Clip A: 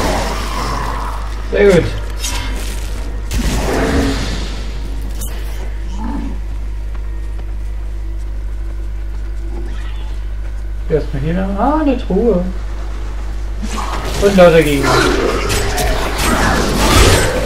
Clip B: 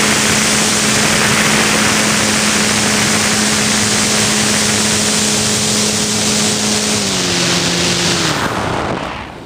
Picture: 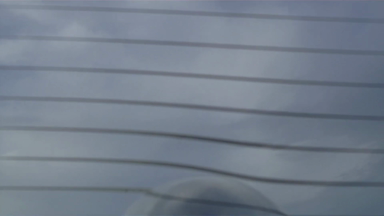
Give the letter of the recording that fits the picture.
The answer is B